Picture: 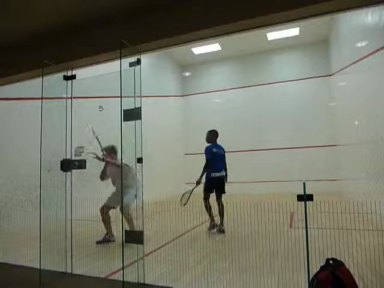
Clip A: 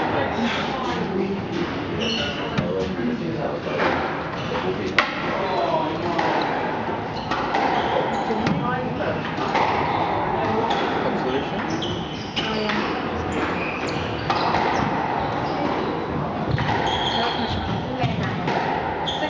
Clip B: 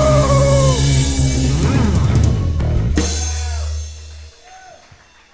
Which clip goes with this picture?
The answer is A